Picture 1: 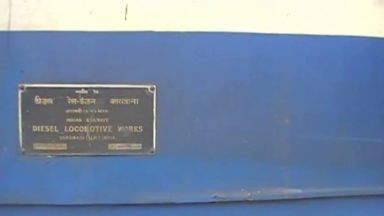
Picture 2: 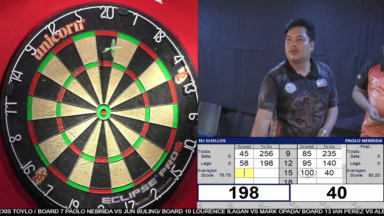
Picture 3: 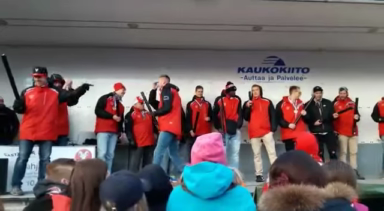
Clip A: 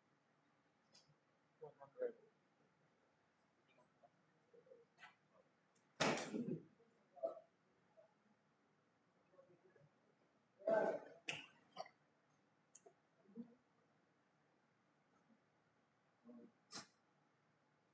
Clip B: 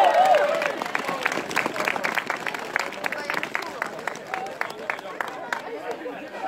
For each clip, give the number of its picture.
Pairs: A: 2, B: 3